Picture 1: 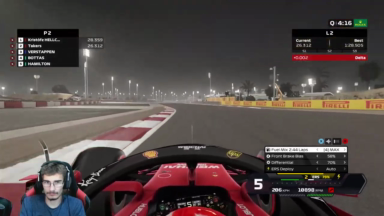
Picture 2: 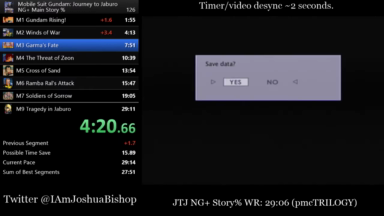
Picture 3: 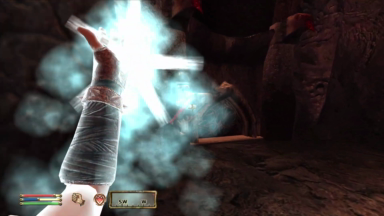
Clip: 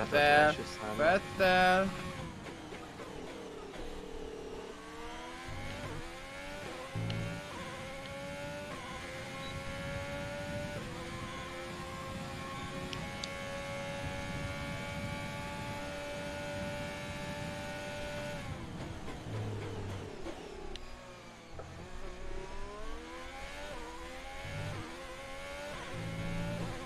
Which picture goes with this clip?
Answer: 1